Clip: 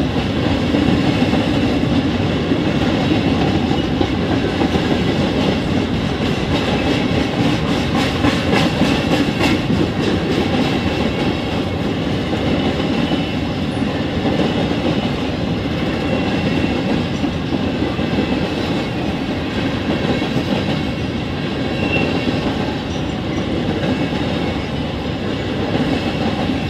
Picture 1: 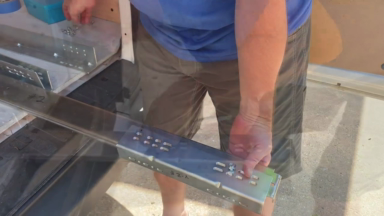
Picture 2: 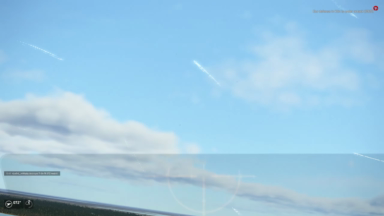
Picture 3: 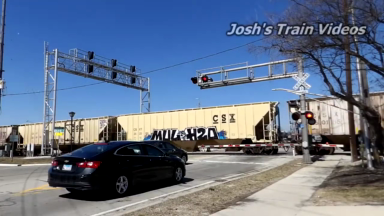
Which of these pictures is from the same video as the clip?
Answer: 3